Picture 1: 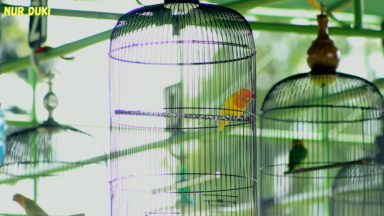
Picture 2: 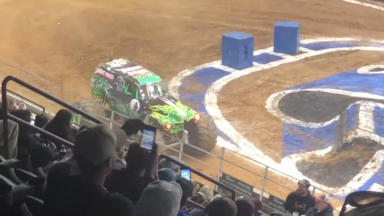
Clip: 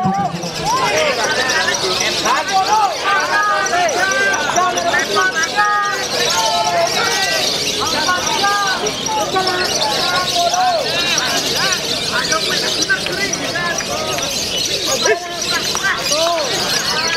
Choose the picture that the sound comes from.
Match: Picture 1